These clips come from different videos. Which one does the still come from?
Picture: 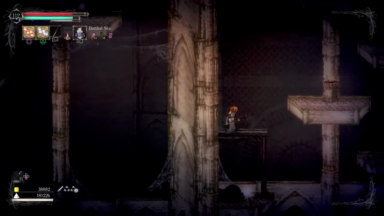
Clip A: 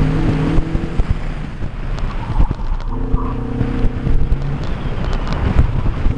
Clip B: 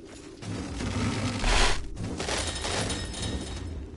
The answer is B